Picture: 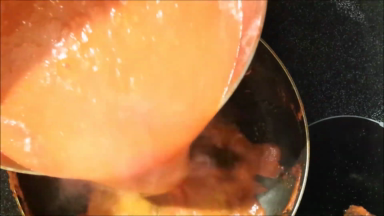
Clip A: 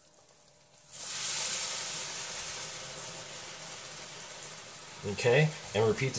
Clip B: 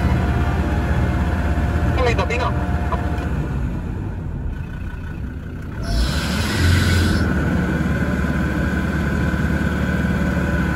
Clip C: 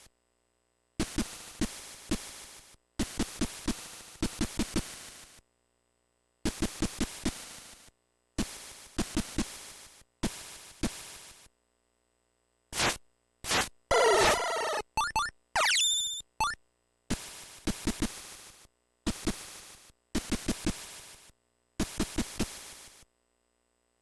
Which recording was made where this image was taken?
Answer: A